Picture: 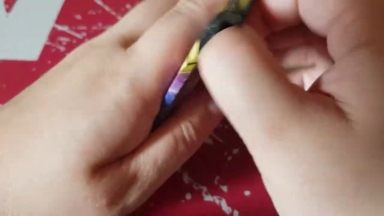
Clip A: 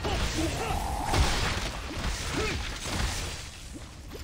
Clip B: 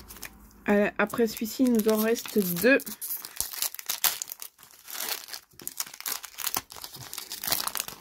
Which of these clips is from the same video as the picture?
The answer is B